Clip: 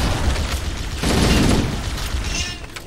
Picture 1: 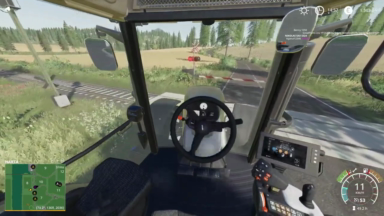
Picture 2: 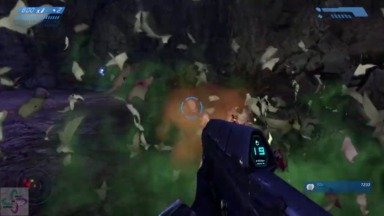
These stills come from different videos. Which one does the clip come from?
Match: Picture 2